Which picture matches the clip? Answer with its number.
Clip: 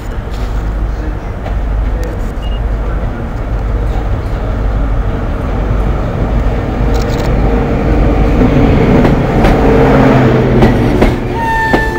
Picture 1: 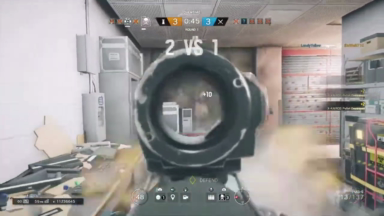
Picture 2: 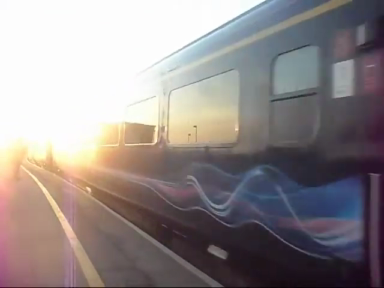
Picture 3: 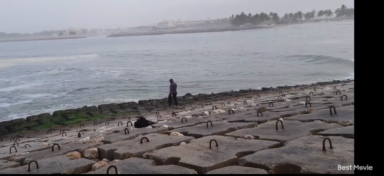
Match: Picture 2